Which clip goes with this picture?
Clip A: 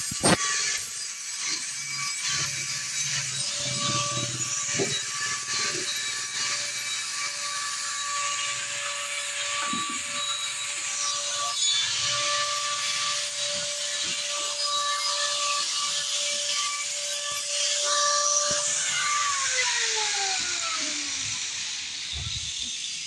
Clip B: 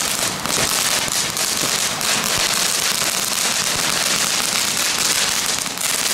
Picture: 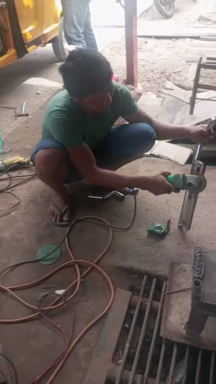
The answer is A